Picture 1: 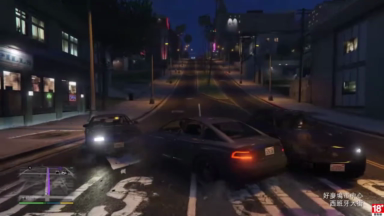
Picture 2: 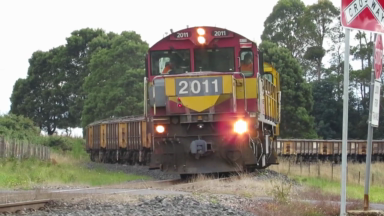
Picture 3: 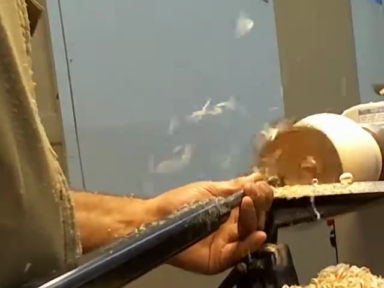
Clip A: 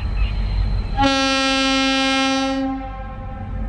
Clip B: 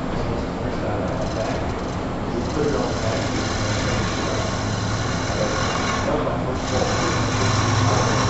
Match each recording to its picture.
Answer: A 2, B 3